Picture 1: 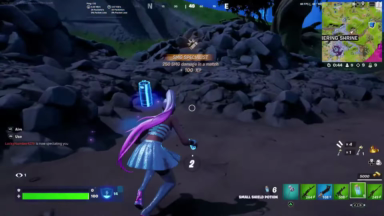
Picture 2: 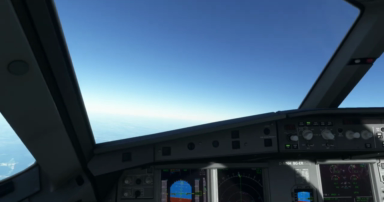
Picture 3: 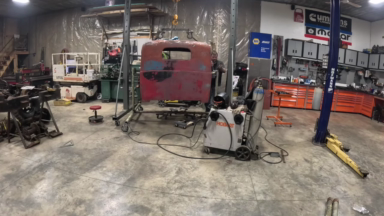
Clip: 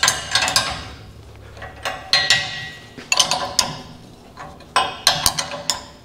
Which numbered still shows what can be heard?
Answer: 3